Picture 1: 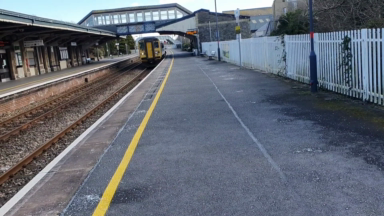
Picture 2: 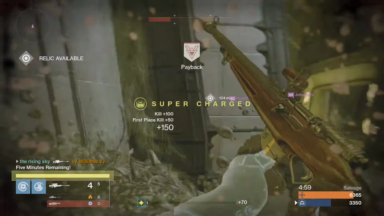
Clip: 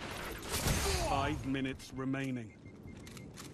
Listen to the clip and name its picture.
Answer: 2